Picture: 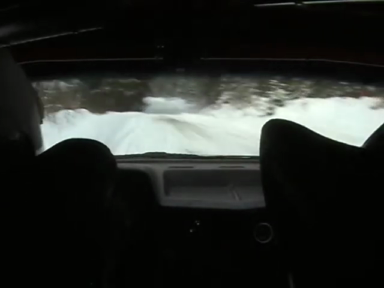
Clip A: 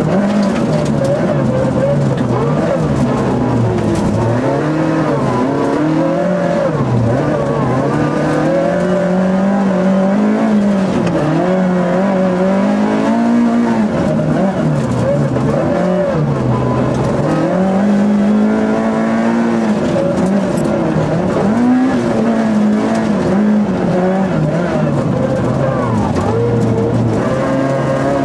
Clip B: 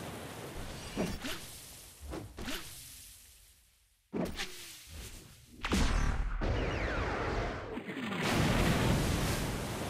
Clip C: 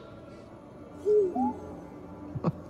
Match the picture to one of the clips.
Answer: A